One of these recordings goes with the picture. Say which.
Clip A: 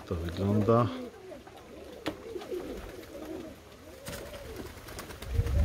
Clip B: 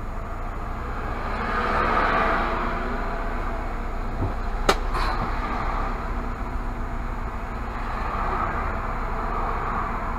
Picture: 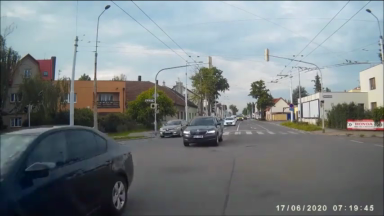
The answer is B